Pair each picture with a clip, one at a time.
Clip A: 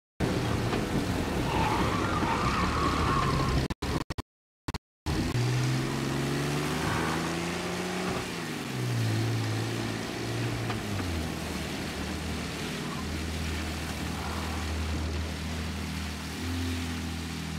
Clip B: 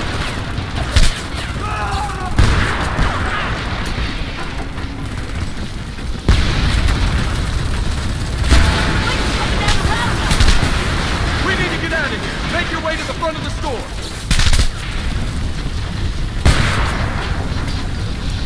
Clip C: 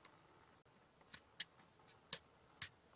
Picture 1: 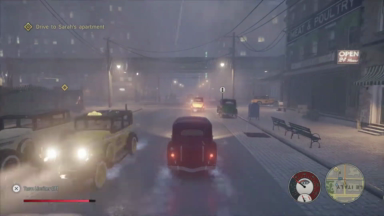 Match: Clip A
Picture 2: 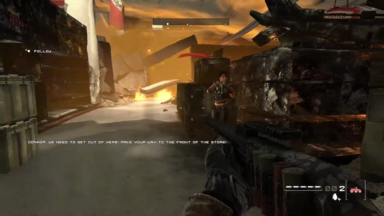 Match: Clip B